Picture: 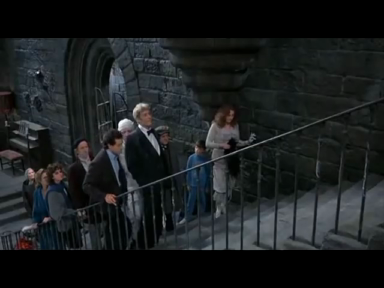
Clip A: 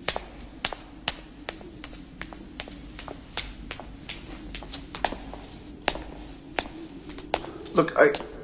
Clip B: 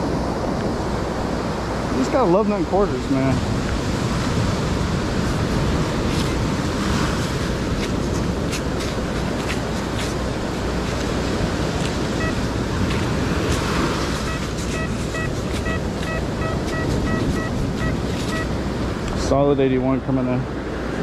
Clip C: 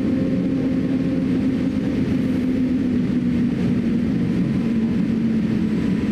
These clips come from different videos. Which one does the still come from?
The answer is A